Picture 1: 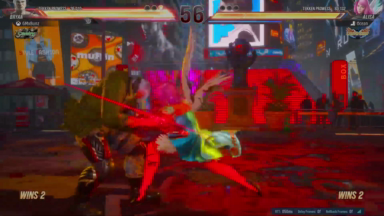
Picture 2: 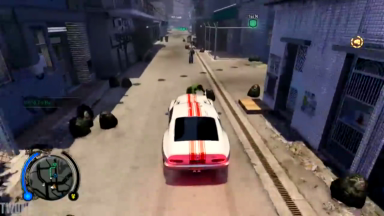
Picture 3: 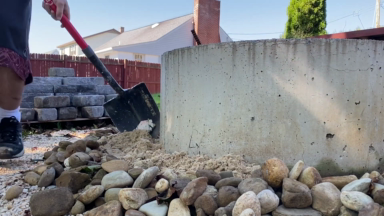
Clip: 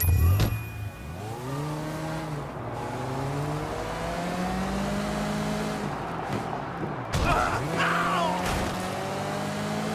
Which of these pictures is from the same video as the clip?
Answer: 2